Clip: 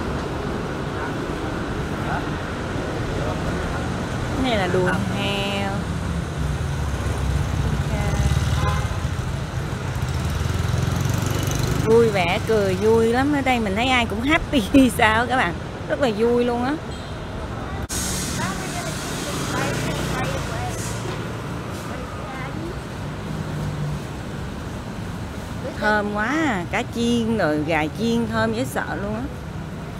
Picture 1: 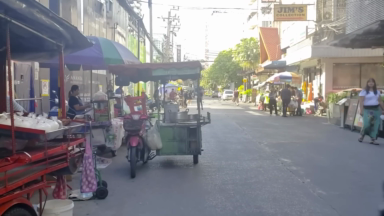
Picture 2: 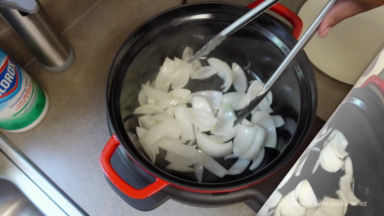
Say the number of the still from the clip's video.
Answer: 1